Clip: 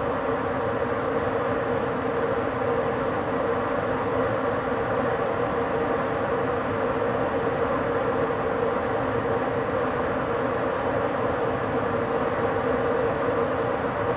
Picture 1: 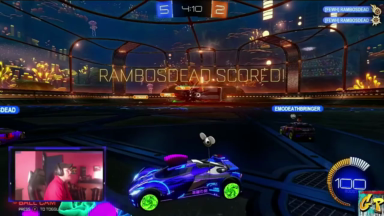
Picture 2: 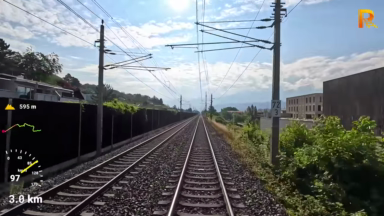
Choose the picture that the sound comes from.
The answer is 2